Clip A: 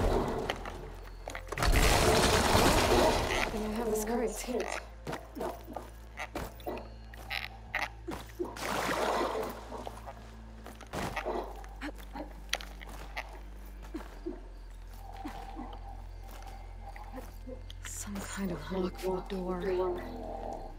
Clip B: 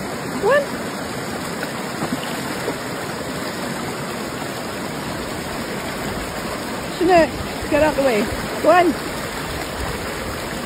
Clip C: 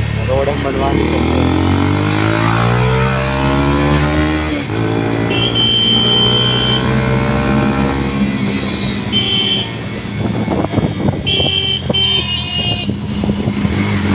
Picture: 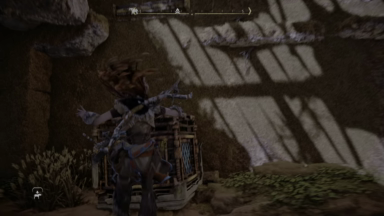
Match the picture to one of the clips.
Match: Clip A